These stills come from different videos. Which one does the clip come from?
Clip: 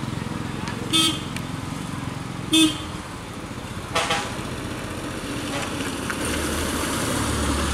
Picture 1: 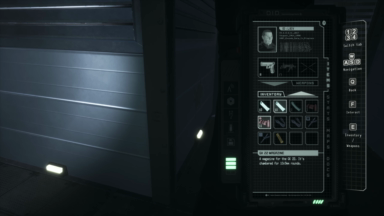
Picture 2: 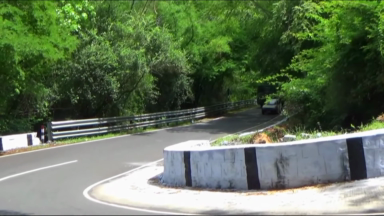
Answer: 2